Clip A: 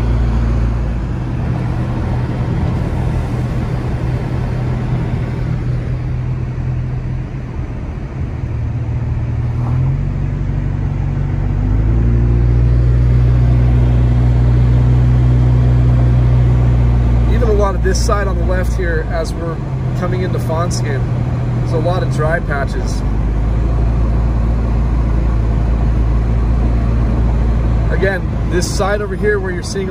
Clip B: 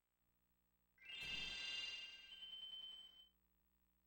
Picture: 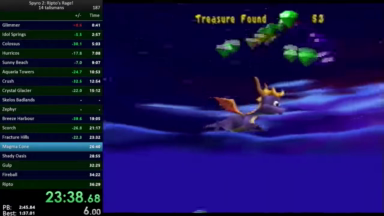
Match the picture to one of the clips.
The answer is B